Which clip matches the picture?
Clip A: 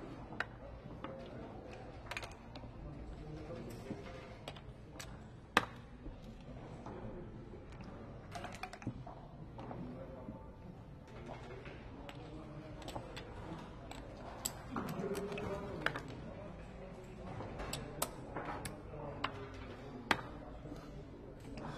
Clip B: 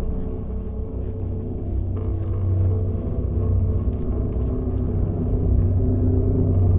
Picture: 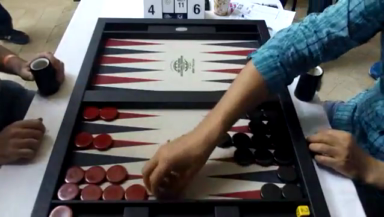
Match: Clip A